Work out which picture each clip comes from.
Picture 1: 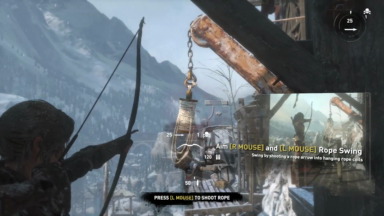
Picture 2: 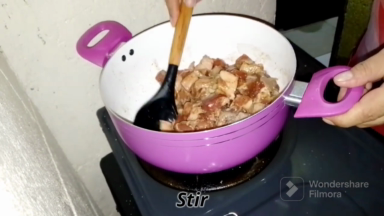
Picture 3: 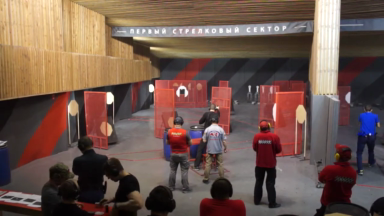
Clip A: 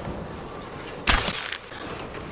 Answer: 1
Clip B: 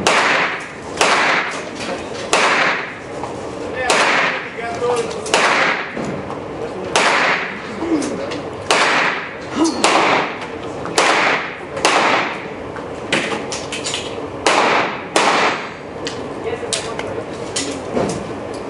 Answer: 3